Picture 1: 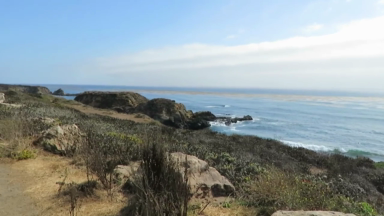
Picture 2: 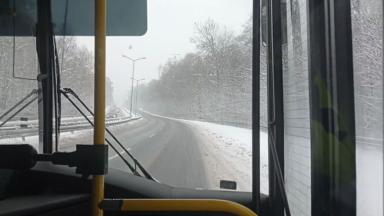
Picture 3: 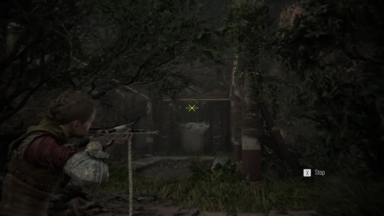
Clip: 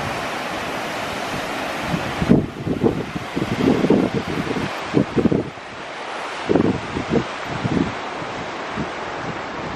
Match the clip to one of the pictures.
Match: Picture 1